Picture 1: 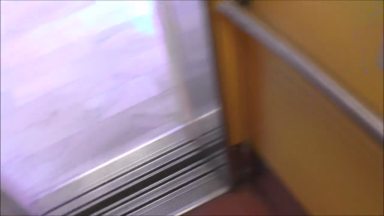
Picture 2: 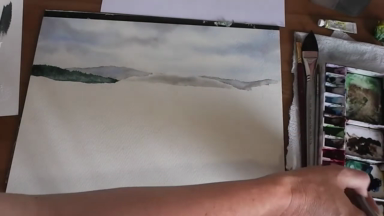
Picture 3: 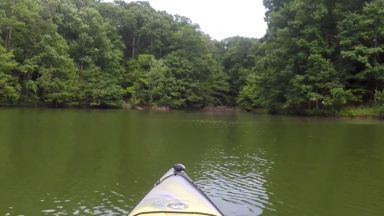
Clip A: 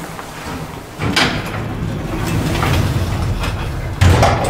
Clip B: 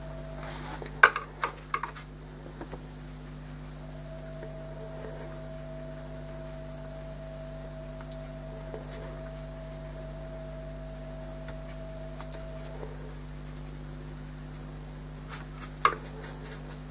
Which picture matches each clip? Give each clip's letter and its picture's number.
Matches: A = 1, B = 2